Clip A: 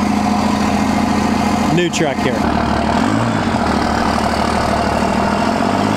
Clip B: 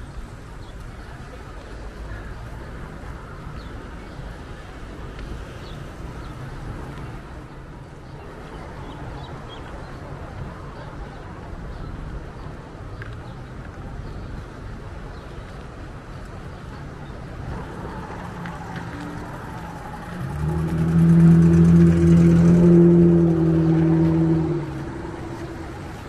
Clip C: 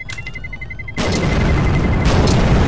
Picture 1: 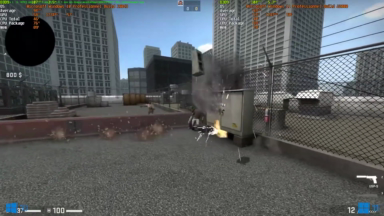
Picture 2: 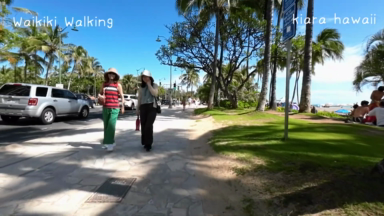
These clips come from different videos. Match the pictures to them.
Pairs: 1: C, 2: B